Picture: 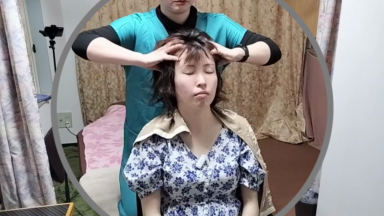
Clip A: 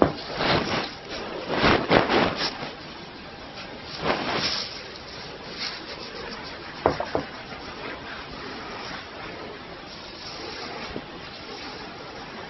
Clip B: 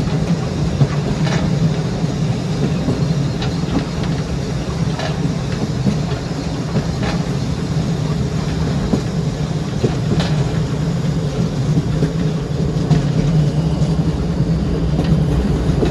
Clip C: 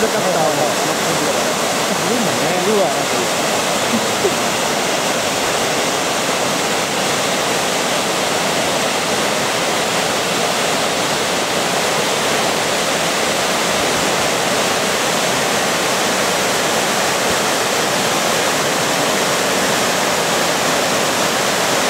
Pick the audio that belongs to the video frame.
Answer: A